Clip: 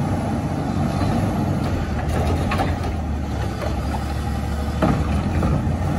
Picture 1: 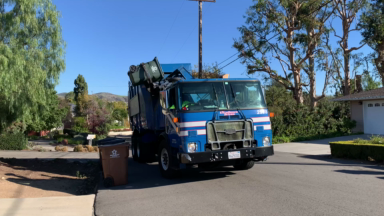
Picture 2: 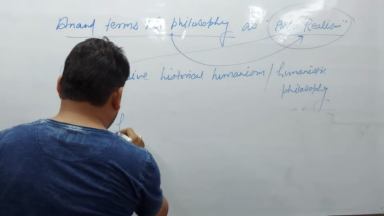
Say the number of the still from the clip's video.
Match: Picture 1